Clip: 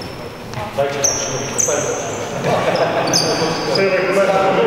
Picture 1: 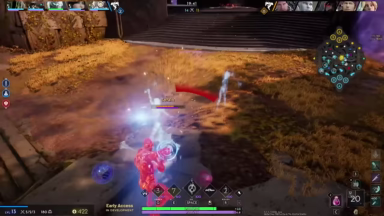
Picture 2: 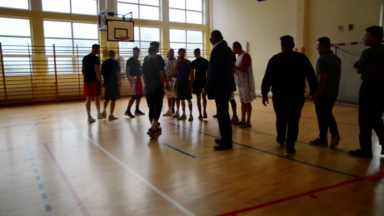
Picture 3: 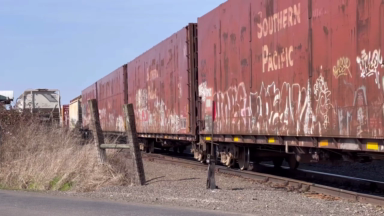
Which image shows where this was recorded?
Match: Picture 2